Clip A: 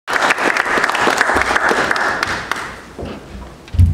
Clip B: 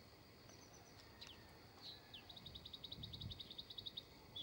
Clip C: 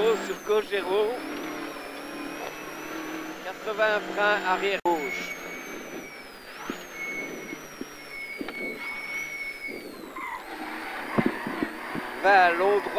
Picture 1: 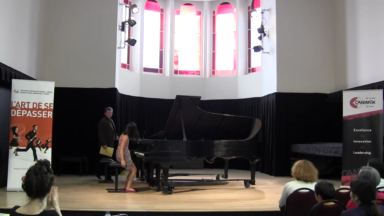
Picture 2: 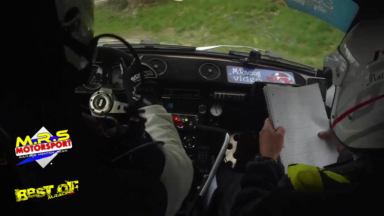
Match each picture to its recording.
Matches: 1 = A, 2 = C